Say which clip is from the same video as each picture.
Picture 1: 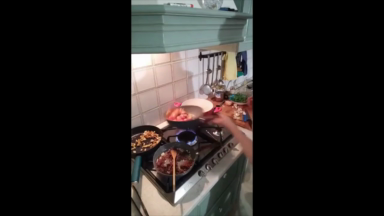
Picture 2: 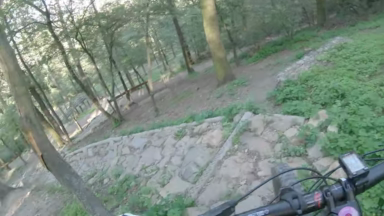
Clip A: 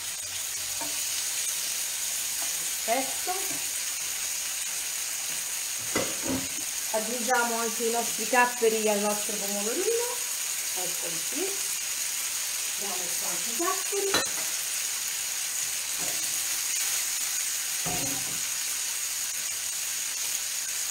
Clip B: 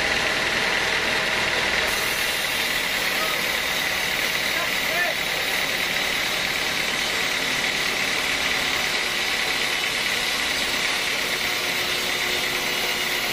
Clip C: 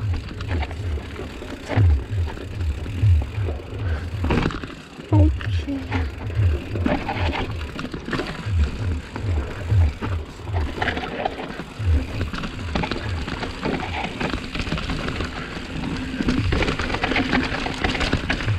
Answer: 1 A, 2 C